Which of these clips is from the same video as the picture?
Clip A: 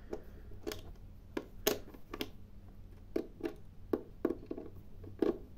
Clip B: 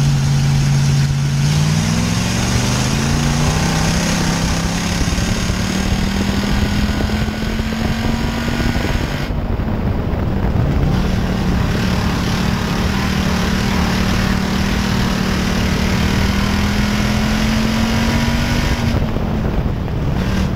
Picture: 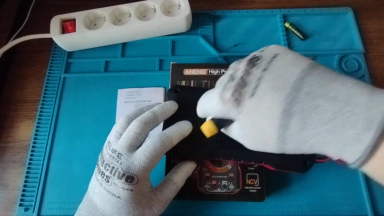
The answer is A